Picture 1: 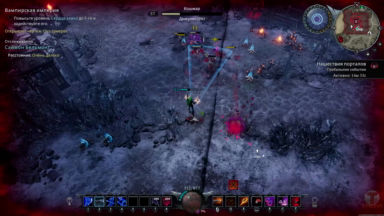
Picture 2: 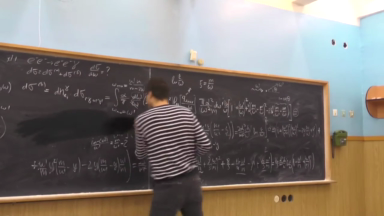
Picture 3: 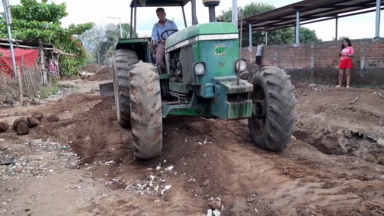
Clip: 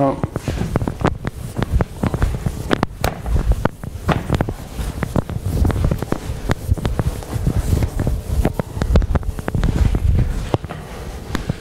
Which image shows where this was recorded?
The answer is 2